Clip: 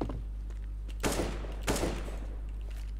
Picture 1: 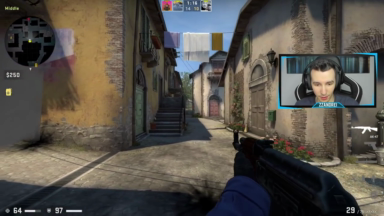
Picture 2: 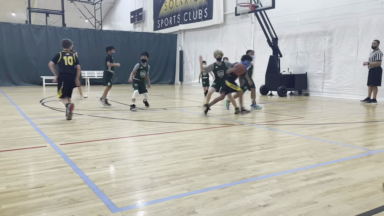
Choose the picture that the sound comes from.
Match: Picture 1